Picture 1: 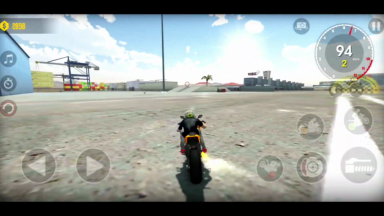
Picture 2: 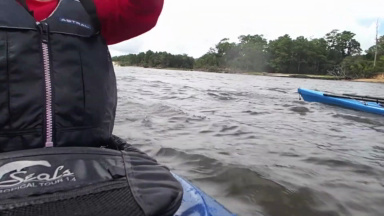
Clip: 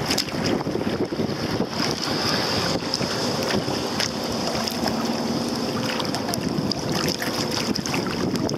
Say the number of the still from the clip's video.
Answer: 2